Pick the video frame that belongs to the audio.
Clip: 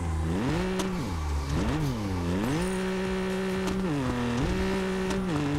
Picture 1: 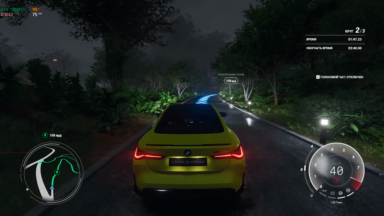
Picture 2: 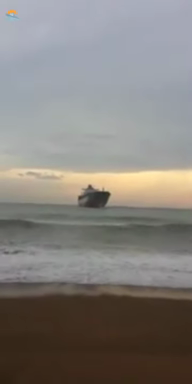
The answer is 1